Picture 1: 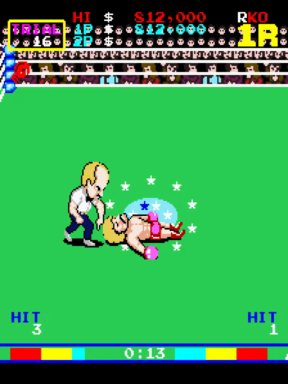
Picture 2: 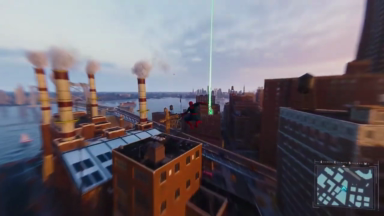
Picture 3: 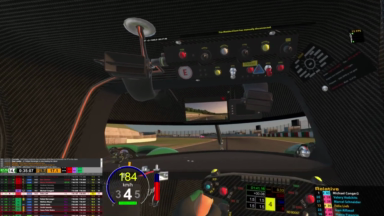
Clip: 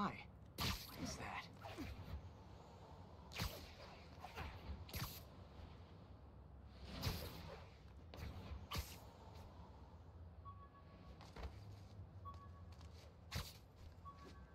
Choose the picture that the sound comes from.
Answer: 2